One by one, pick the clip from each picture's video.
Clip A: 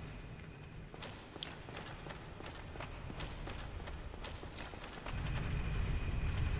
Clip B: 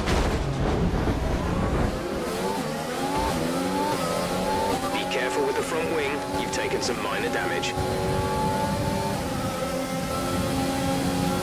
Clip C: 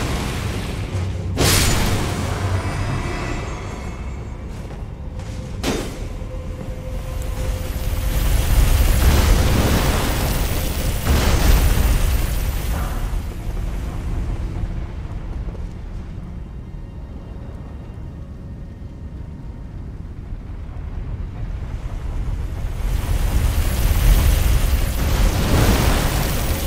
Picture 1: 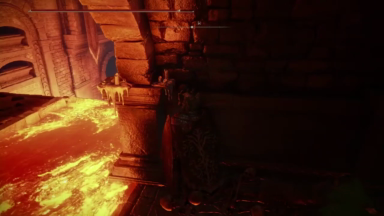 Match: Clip C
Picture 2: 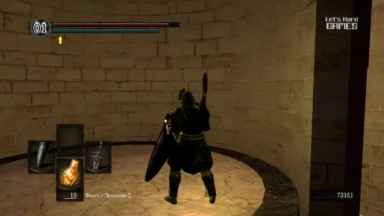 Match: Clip A